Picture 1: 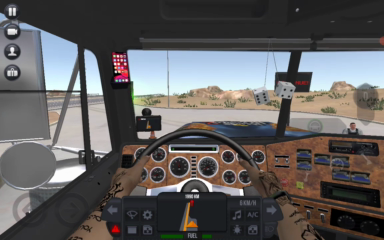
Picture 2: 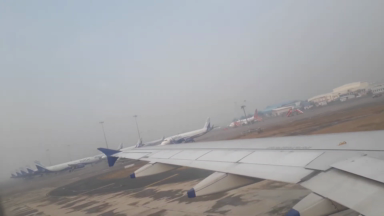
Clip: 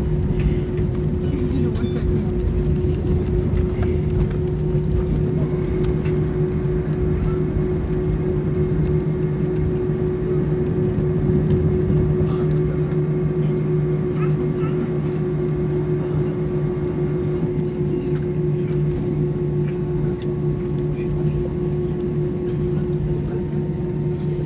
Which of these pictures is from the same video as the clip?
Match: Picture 2